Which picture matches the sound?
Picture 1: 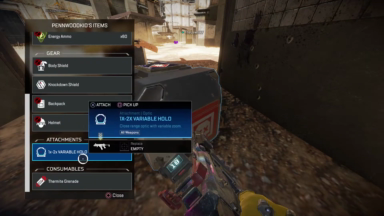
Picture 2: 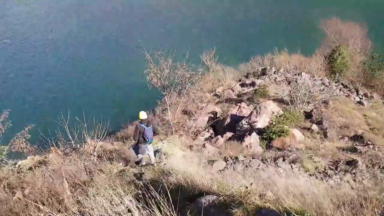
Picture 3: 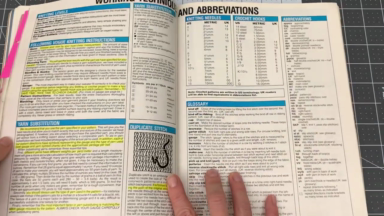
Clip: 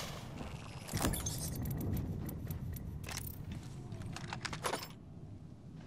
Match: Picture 1